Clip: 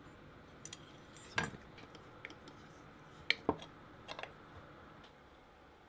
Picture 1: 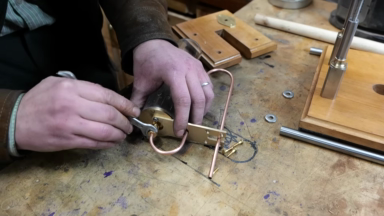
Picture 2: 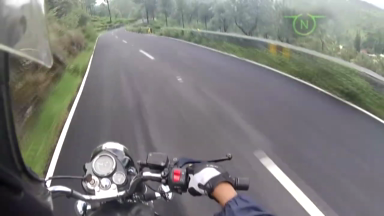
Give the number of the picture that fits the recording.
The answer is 1